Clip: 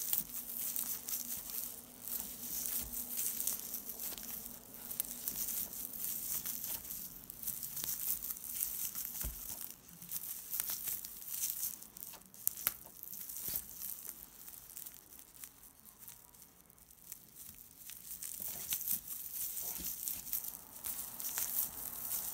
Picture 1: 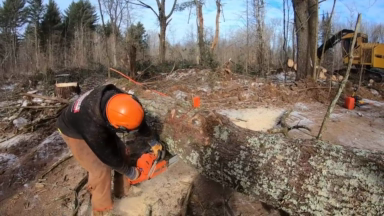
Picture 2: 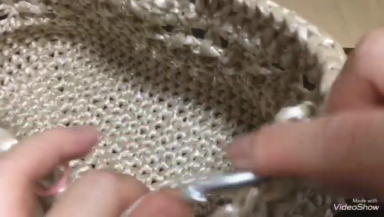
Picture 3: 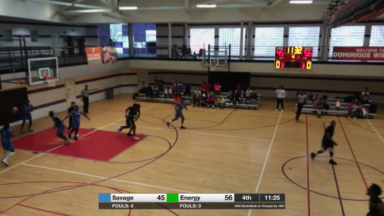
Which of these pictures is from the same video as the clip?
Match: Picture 2